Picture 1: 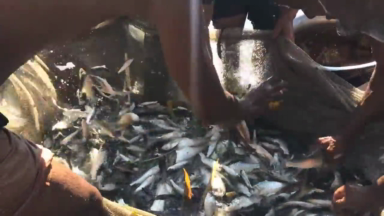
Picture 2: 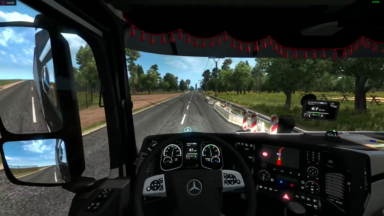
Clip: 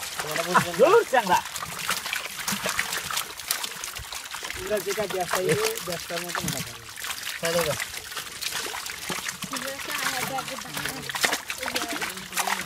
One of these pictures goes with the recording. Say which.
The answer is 1